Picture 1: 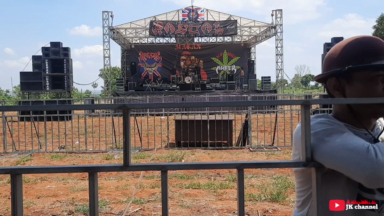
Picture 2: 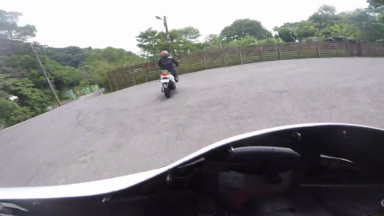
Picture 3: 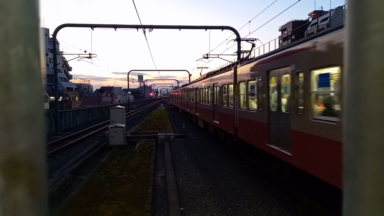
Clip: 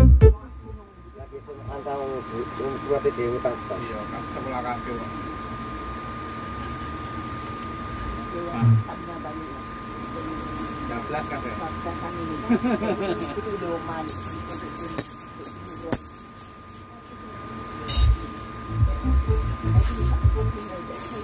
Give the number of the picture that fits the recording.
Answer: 1